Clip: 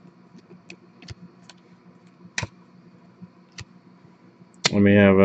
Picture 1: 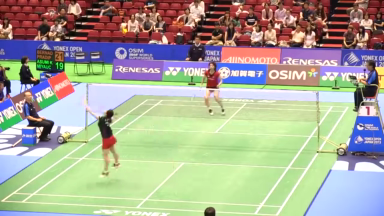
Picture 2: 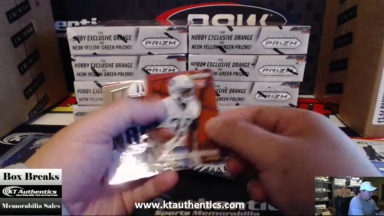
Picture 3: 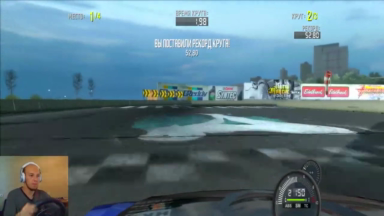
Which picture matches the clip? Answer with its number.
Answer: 2